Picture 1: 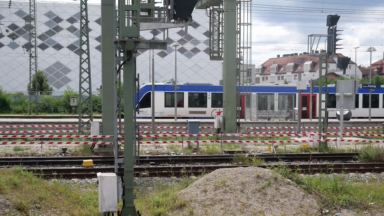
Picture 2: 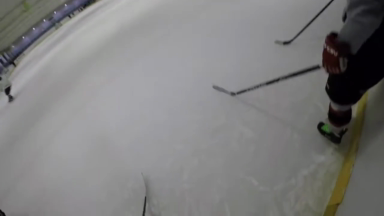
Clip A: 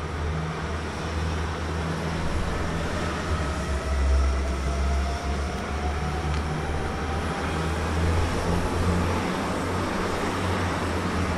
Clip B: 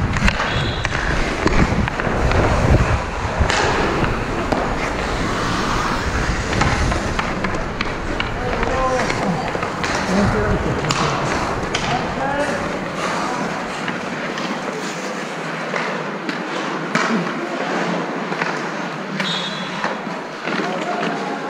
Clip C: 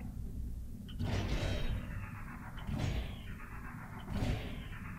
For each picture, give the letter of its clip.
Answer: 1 A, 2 B